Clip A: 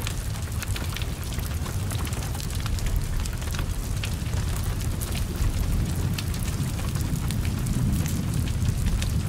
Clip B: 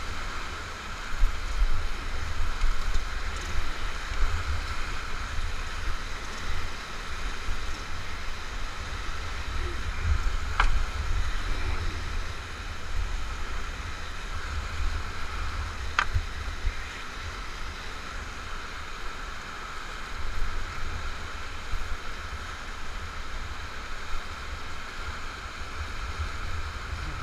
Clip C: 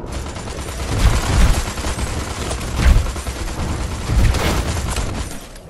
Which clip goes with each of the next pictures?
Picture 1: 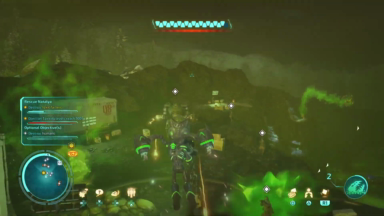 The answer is C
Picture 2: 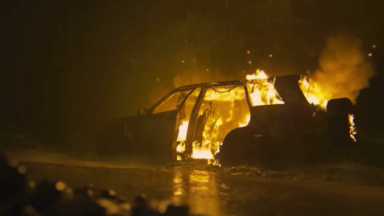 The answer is A